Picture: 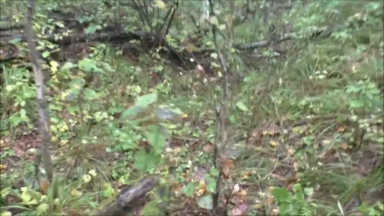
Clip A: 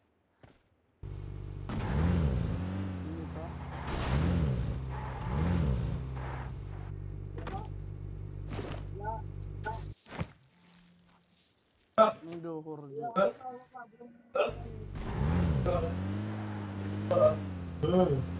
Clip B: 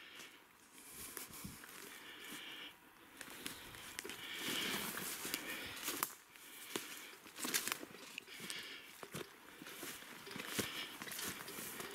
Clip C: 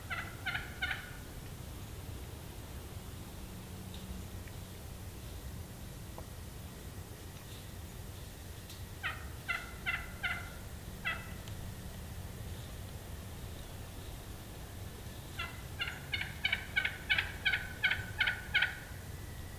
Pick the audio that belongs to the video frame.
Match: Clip B